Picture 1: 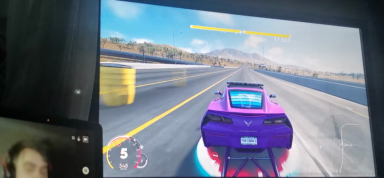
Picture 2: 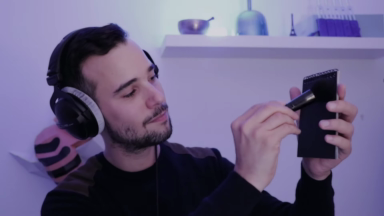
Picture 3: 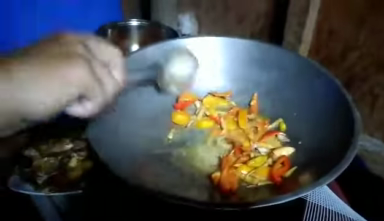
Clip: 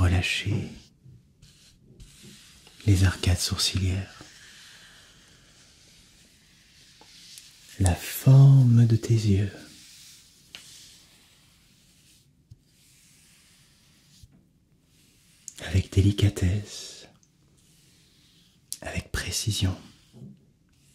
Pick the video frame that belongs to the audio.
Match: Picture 2